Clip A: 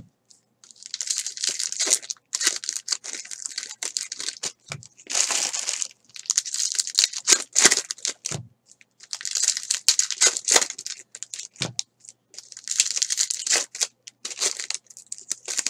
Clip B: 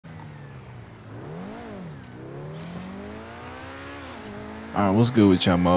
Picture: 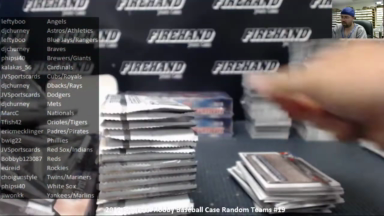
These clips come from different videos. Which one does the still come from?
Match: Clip A